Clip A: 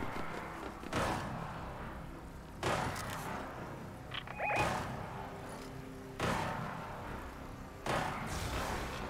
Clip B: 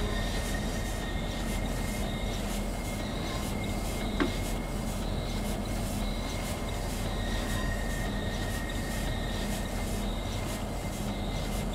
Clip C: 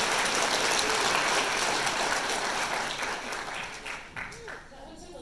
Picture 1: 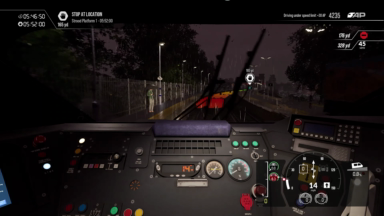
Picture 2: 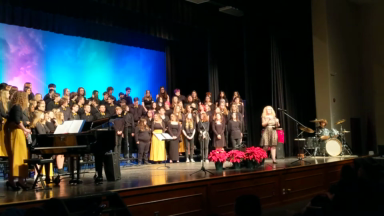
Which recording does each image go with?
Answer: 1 B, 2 C